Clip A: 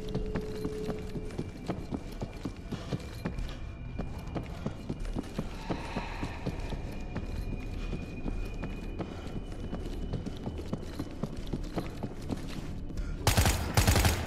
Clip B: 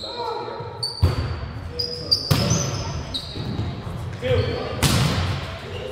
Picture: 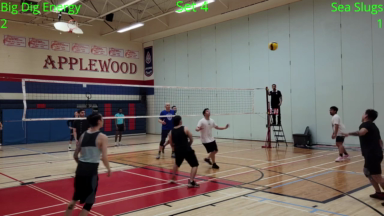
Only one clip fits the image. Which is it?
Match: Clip B